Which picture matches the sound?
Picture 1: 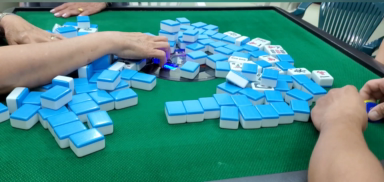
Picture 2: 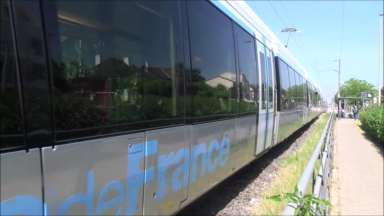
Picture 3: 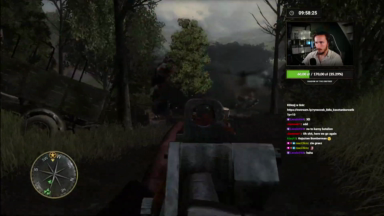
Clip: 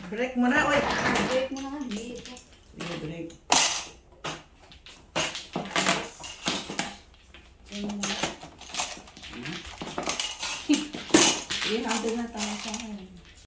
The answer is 1